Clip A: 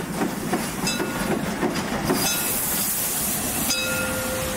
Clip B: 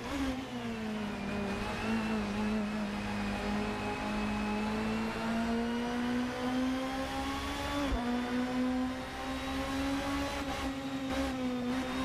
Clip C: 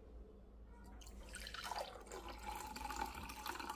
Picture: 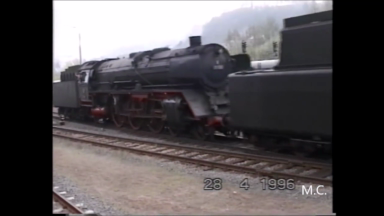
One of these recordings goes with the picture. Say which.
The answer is A